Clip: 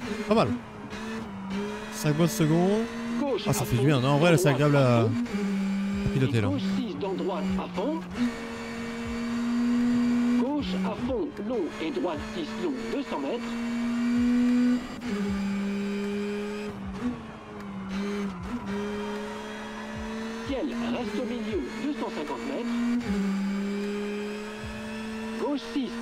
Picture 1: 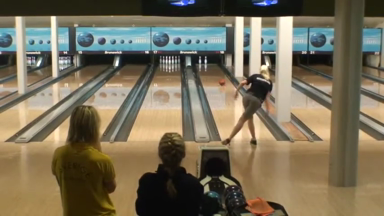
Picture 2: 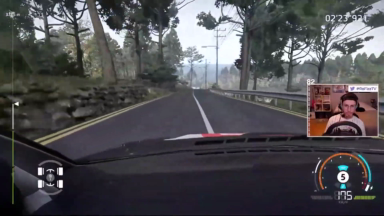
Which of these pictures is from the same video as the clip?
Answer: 2